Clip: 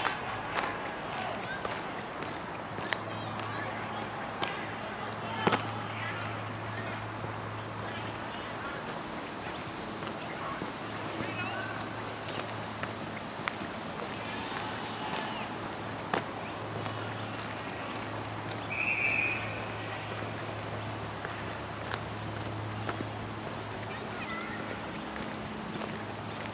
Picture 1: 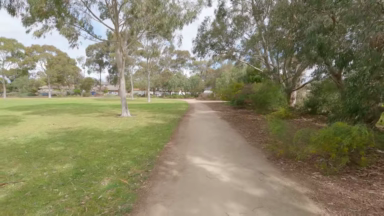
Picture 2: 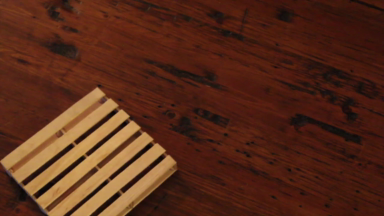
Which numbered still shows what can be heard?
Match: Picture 1